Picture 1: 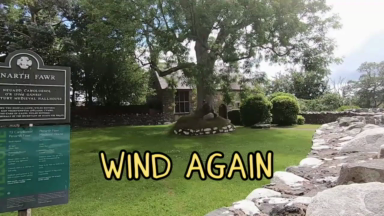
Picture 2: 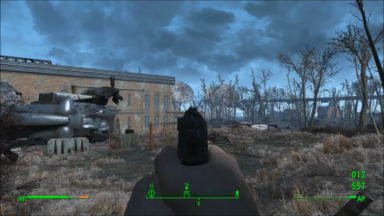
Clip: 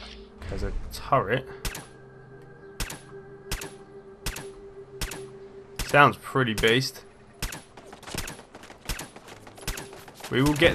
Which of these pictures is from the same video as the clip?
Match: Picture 2